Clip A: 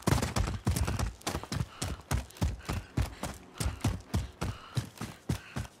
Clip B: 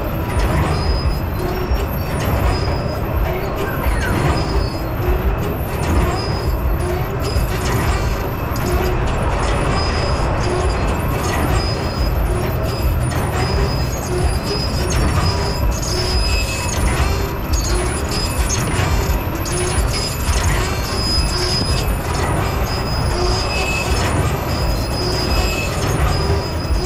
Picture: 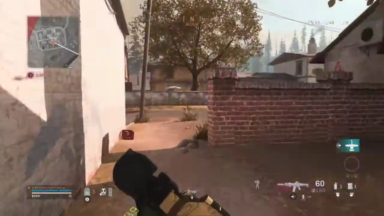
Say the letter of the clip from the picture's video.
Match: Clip A